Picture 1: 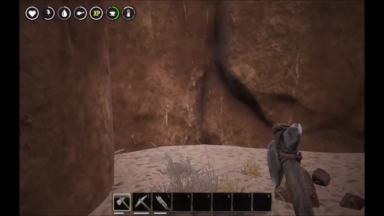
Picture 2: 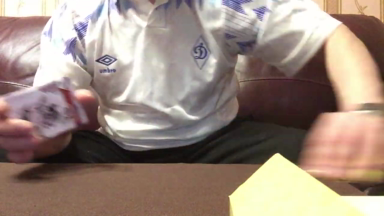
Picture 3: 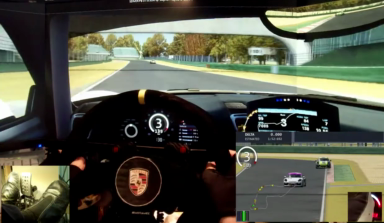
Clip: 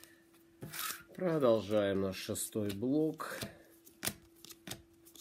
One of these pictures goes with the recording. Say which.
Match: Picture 2